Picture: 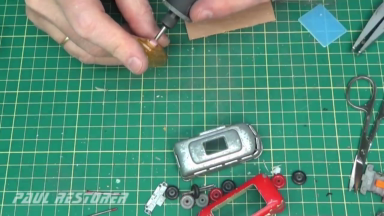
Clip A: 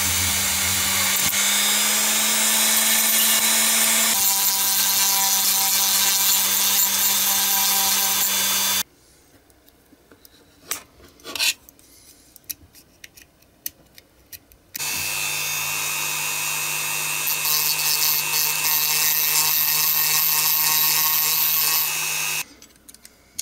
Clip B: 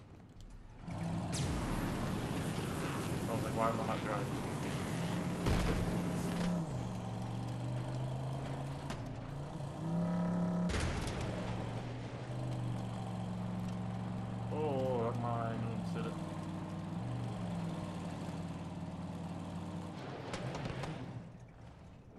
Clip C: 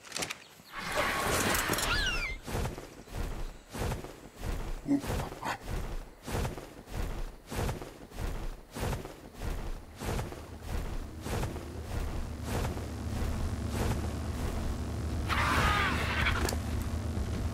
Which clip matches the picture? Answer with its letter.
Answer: A